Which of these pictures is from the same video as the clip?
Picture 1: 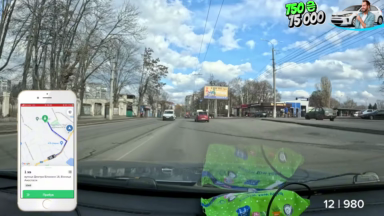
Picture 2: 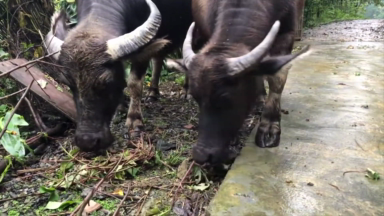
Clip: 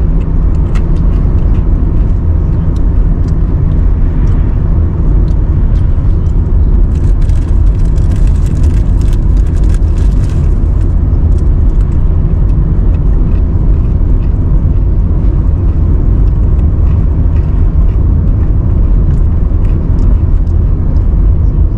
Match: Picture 1